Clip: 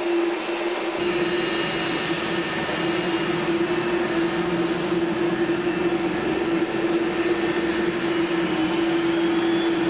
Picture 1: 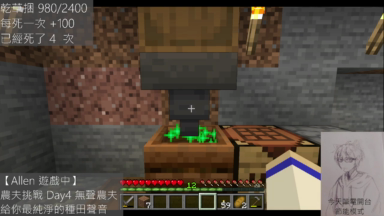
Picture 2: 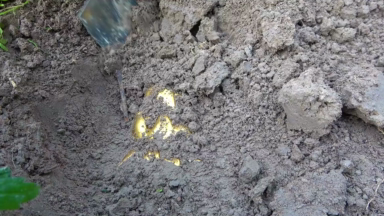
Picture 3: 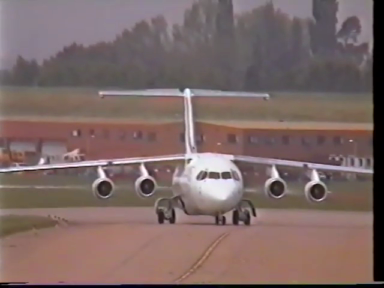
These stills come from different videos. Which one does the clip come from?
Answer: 3